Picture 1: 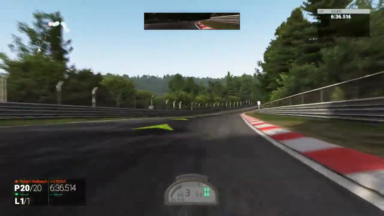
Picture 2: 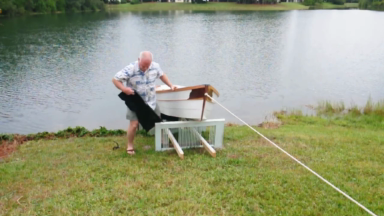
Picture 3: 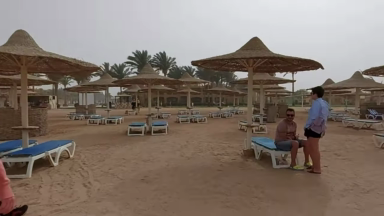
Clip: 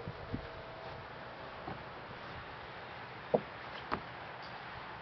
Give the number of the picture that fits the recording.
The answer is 2